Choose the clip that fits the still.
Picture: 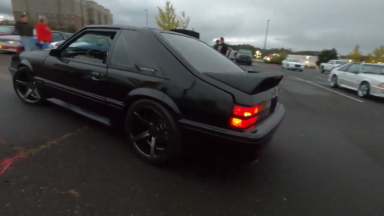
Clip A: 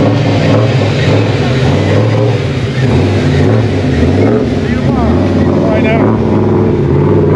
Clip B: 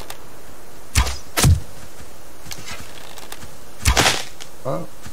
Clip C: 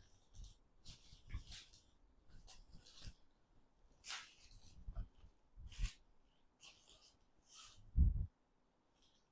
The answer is A